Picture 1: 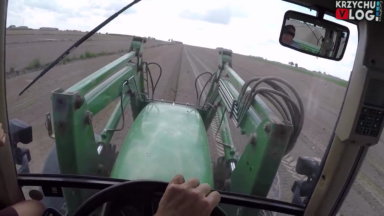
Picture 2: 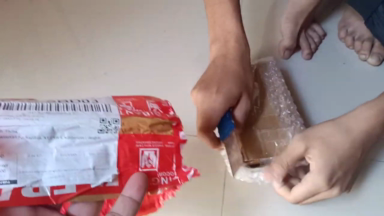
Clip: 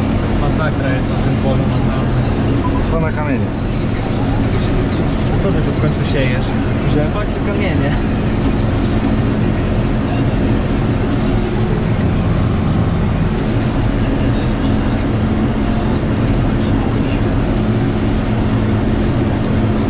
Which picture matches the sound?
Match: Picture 1